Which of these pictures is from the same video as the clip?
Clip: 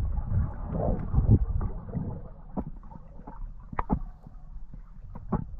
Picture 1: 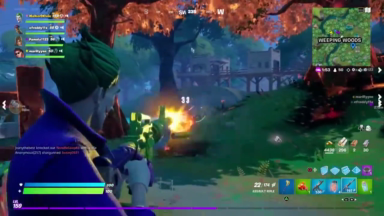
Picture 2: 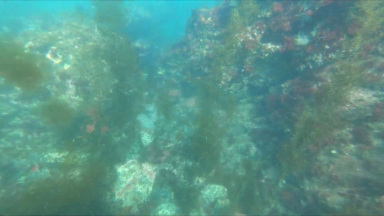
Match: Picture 2